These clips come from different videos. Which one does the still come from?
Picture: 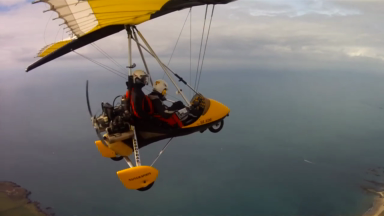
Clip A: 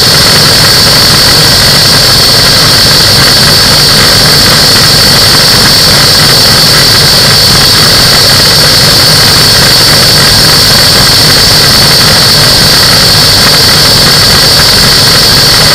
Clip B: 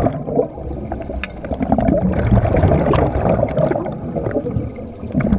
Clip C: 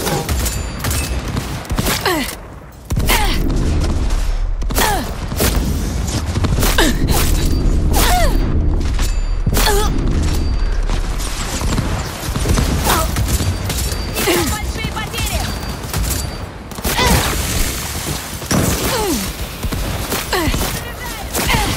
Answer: A